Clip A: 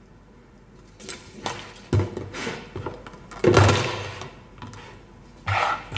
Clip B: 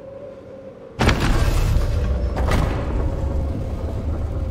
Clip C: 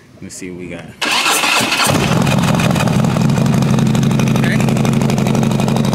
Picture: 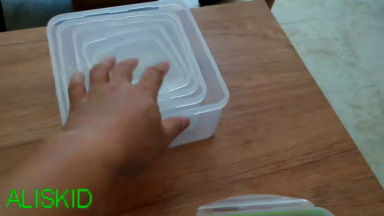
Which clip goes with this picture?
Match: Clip A